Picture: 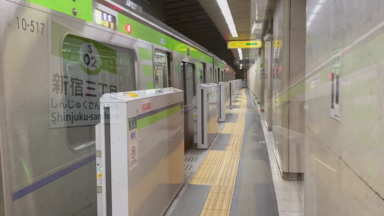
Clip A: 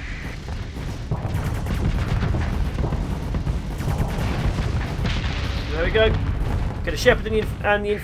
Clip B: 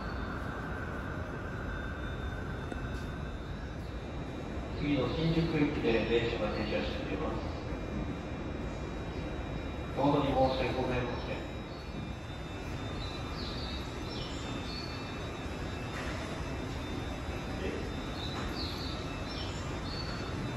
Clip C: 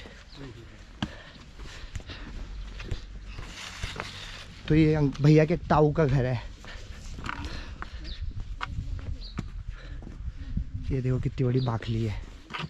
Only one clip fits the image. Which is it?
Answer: B